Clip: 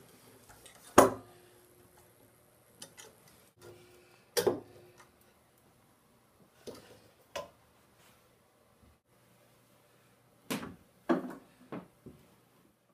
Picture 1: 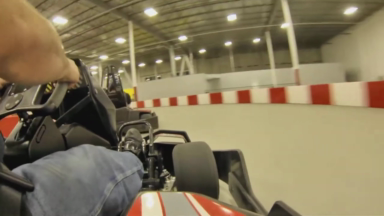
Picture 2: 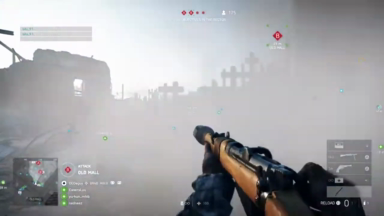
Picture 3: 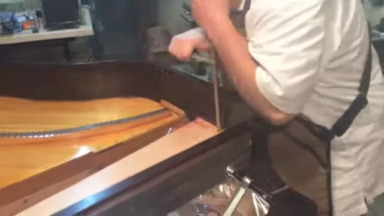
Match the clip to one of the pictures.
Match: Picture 3